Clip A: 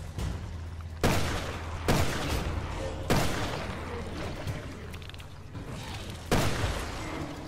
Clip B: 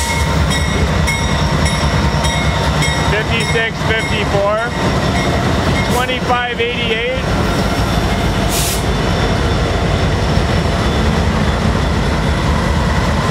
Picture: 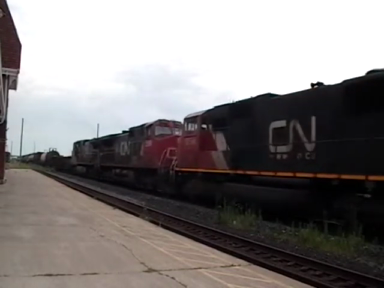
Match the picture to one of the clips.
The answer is B